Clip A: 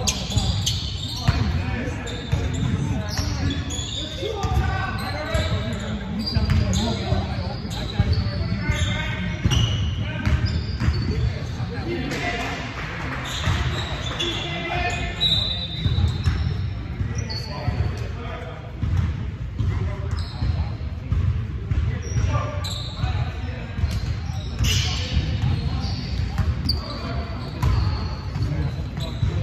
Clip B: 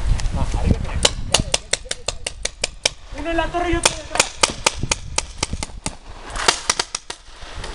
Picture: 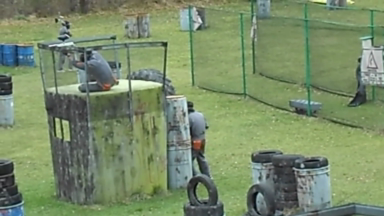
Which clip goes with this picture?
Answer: B